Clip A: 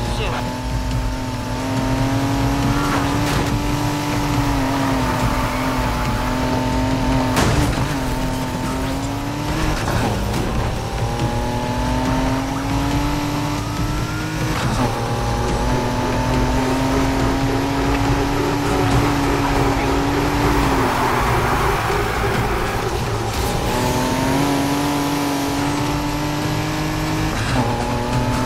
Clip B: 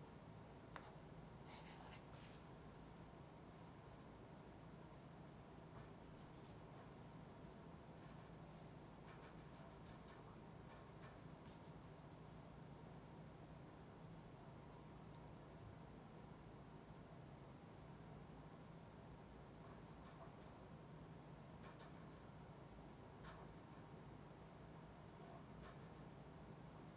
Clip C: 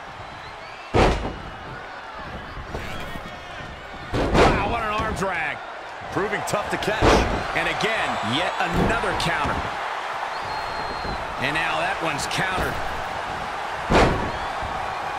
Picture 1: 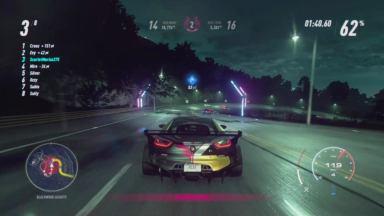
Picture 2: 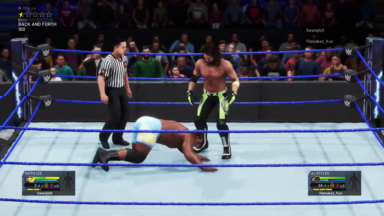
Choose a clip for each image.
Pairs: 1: A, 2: C